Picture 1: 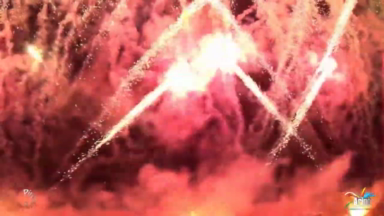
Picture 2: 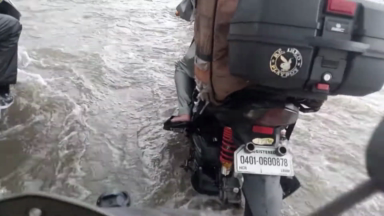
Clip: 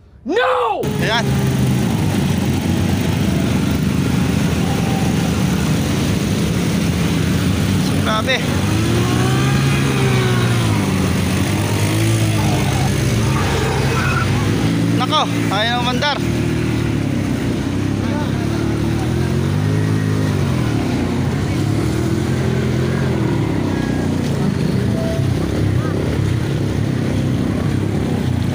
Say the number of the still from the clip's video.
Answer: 2